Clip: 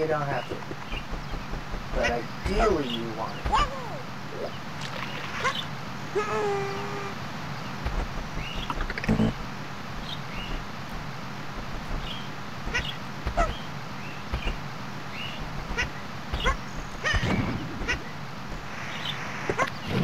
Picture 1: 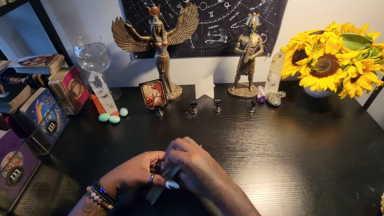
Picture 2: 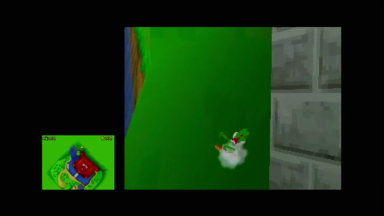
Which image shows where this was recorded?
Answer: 2